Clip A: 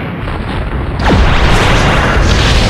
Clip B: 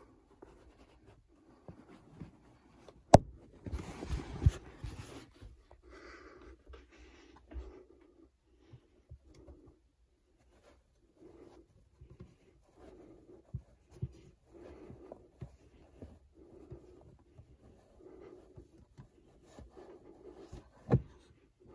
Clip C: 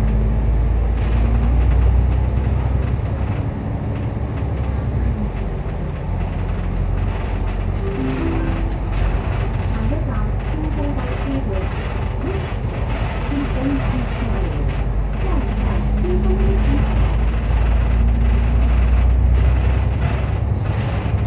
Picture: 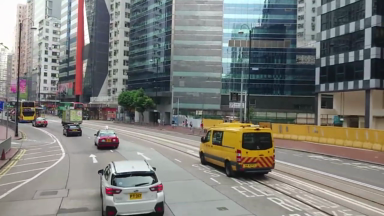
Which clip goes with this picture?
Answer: C